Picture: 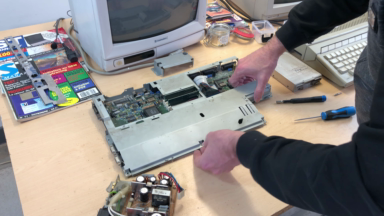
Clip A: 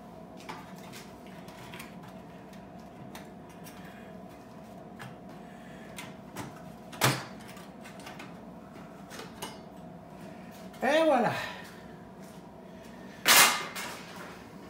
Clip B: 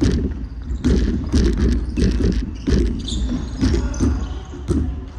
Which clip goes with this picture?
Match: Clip A